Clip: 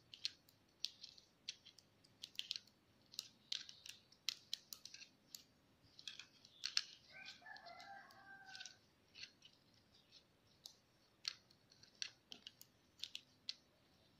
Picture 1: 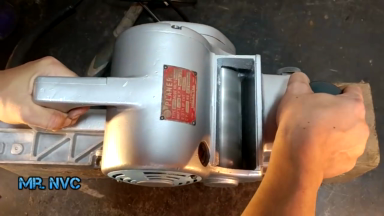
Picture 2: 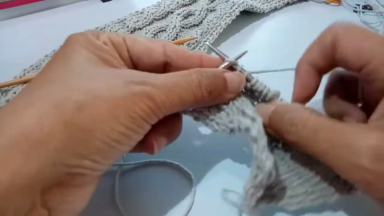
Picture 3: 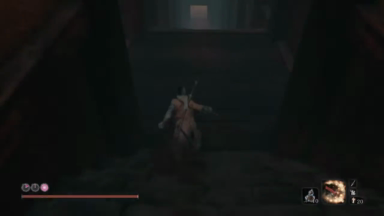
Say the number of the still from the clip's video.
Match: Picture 2